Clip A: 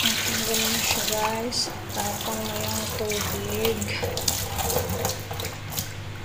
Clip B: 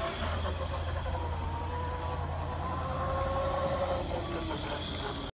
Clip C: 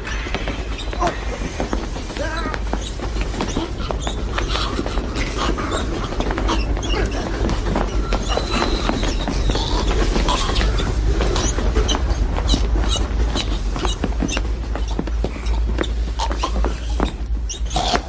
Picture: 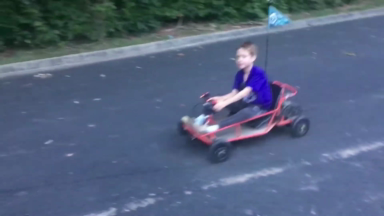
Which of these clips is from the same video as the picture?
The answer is B